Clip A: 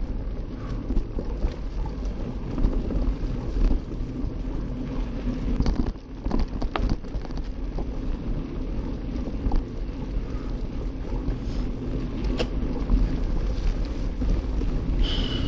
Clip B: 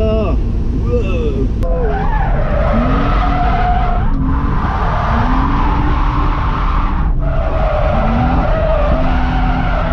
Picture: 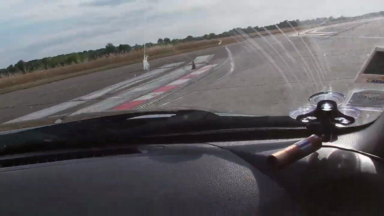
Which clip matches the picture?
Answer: B